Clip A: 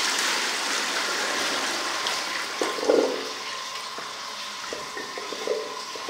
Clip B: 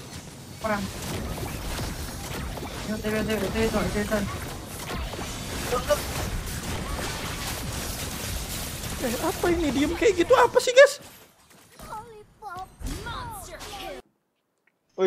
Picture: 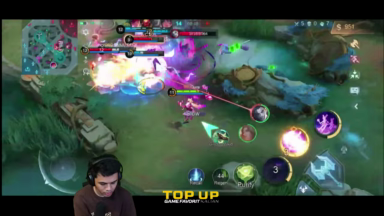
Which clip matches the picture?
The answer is B